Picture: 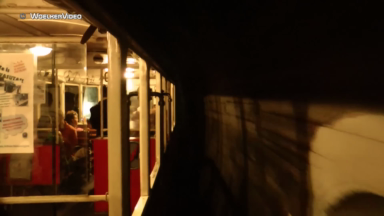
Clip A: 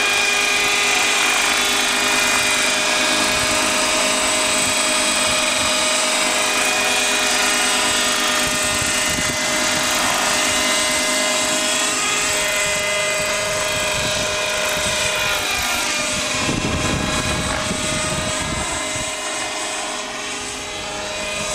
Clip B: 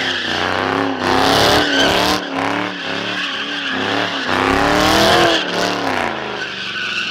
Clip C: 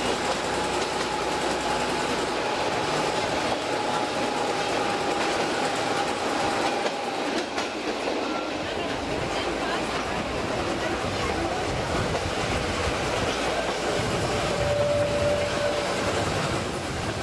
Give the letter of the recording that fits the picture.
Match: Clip C